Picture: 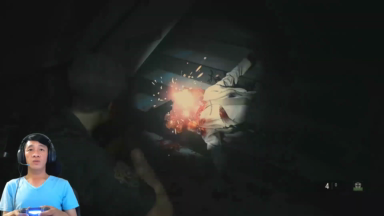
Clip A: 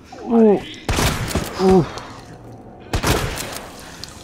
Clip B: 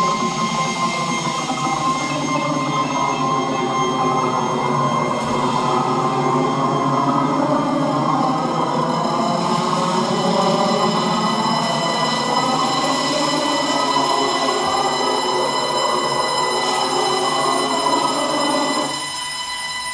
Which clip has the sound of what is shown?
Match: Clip A